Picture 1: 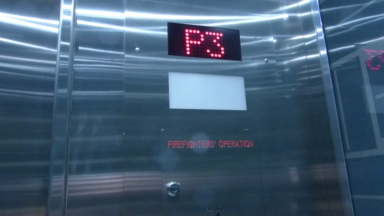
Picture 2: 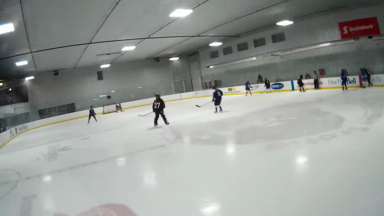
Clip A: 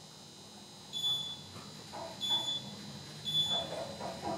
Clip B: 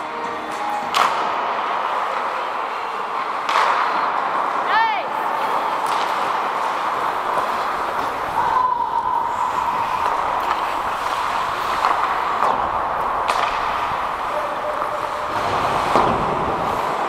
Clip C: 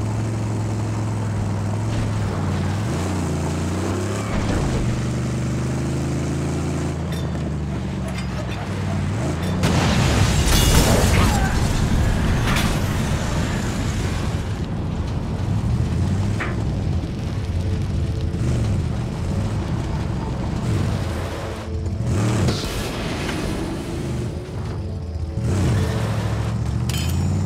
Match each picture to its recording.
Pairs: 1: A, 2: B